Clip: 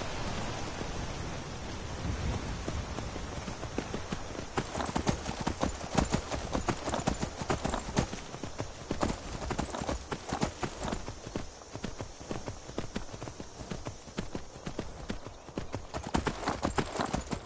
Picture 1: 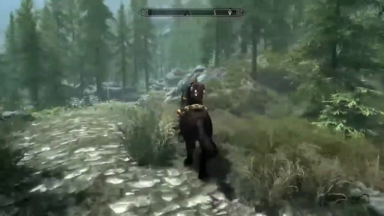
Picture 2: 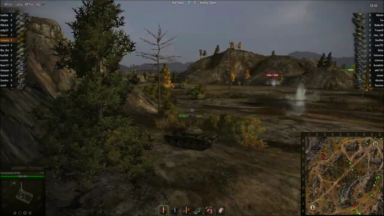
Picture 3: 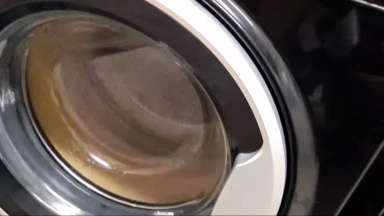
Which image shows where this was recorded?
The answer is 1